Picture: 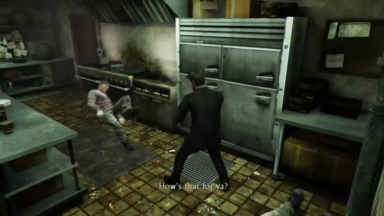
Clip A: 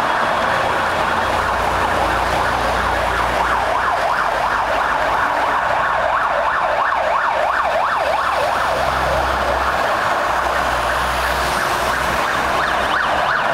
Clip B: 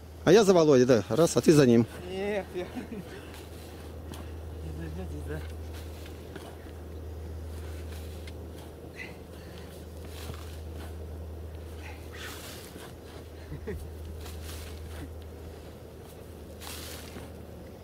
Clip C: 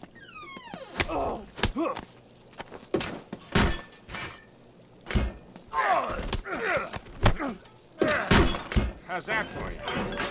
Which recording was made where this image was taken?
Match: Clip C